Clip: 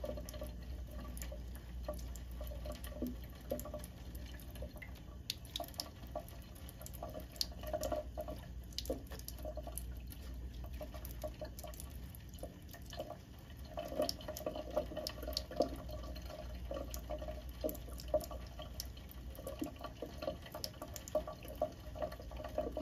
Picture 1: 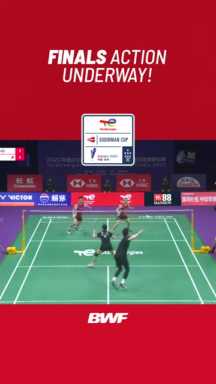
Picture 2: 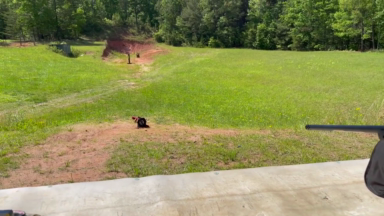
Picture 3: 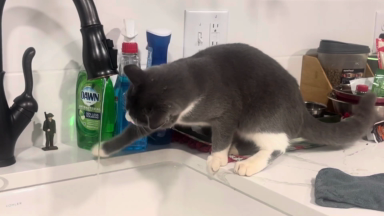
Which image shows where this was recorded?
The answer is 3